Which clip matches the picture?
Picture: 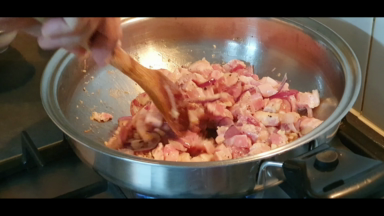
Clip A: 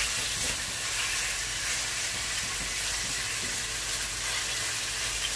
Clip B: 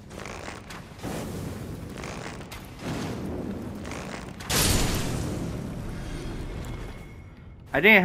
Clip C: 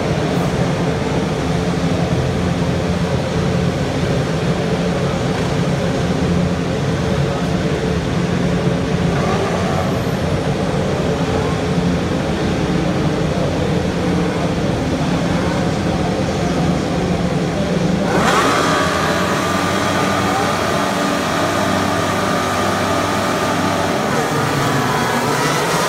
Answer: A